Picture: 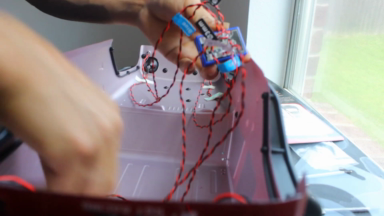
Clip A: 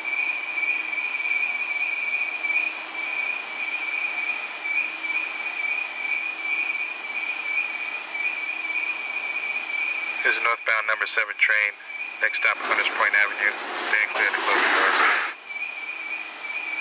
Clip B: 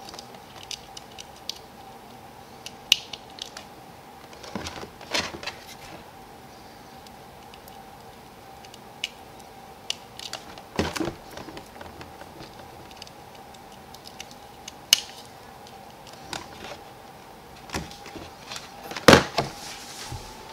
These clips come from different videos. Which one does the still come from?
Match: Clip B